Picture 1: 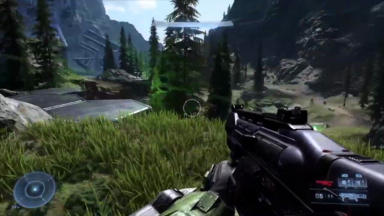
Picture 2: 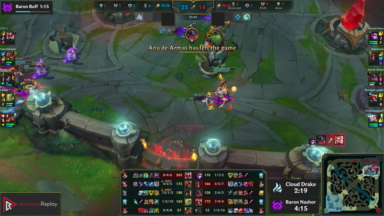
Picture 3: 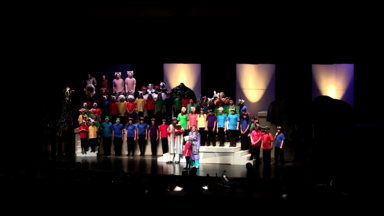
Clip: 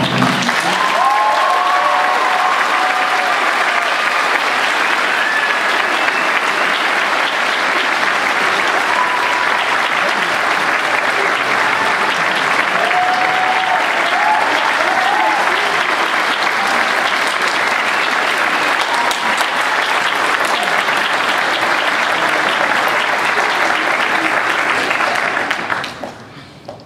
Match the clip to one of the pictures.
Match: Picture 3